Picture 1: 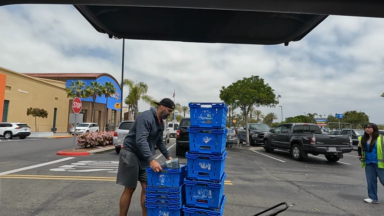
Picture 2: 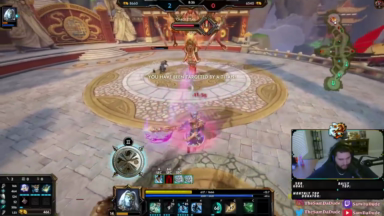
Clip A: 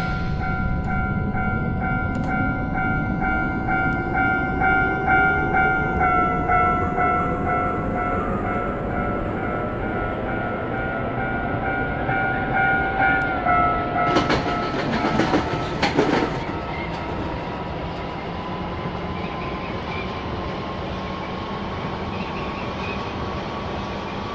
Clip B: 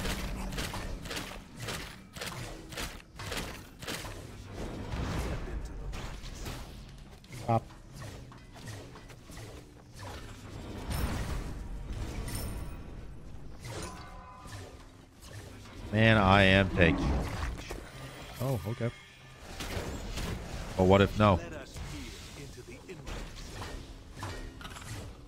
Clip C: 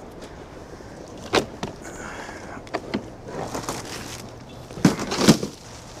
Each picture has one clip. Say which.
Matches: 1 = C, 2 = B